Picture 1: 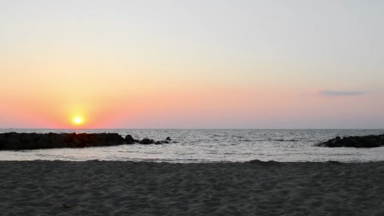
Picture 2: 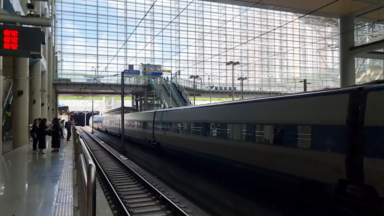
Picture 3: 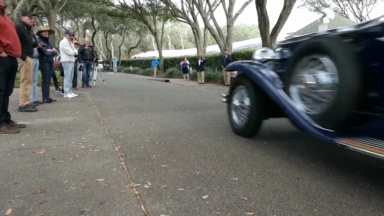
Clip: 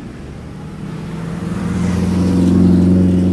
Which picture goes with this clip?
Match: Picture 3